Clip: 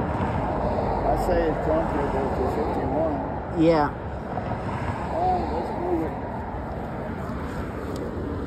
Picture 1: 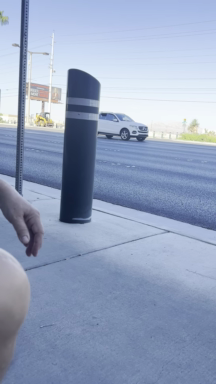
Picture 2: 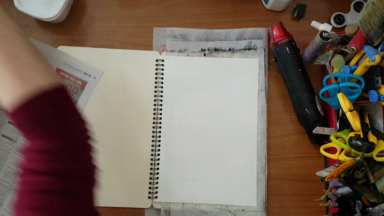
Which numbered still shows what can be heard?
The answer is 1